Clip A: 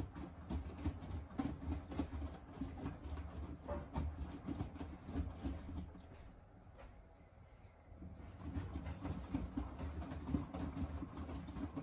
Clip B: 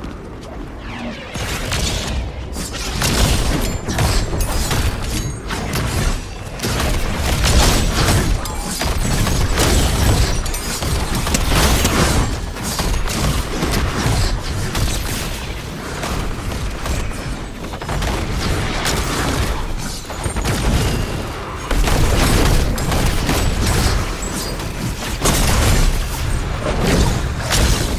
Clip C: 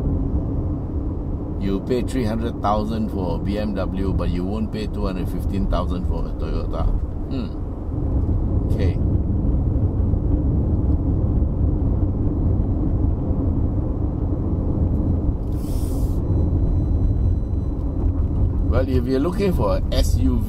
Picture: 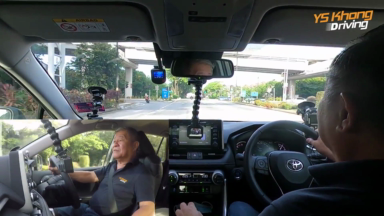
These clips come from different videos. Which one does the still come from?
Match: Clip C